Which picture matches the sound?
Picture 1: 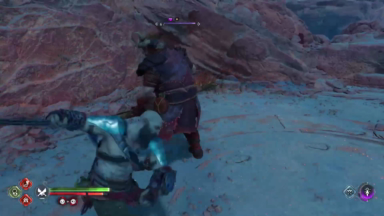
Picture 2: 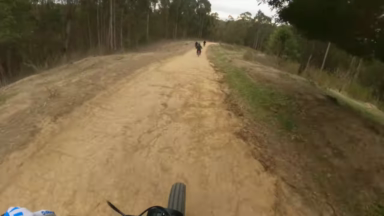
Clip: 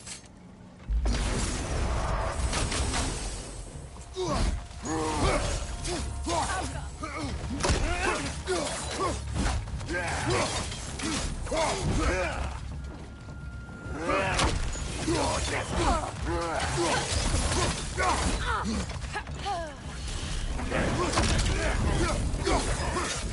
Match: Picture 1